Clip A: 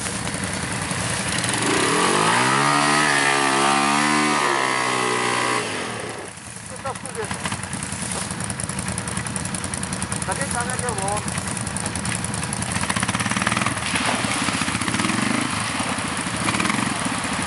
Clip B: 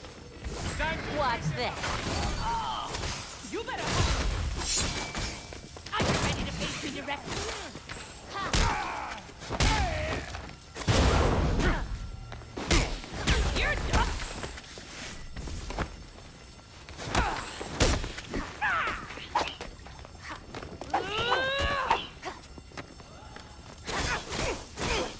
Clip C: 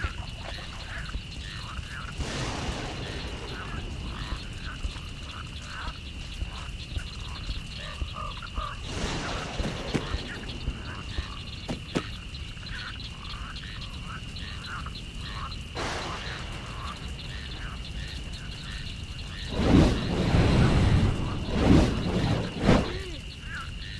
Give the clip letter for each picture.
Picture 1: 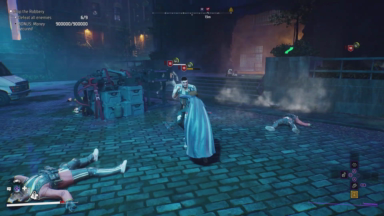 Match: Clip B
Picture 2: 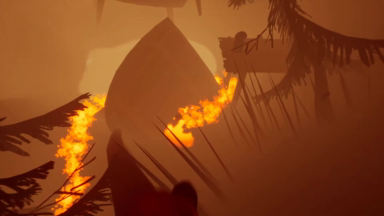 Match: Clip C